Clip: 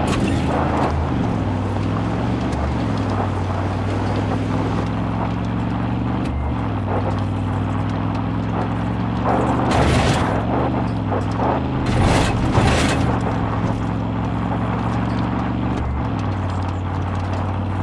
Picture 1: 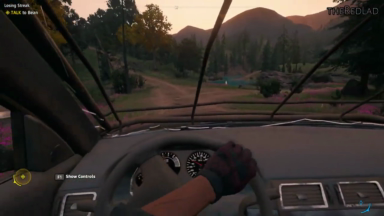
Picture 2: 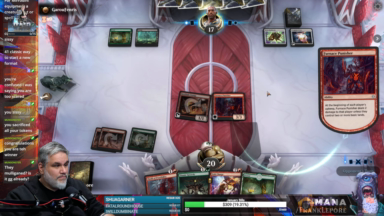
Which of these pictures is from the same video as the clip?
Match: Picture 1